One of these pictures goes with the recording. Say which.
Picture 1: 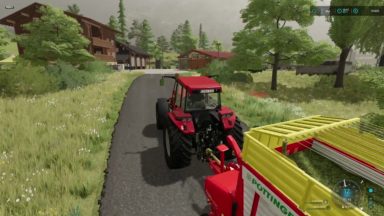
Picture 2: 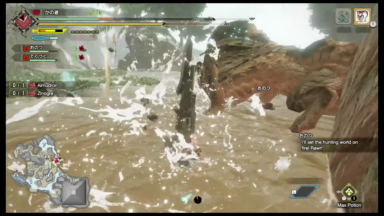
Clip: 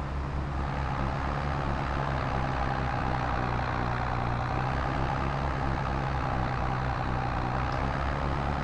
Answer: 1